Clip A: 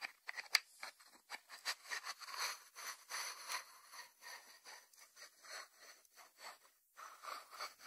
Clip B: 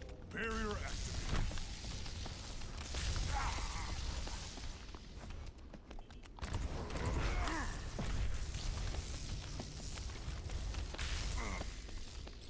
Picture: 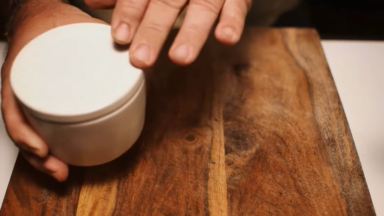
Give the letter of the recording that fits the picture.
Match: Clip A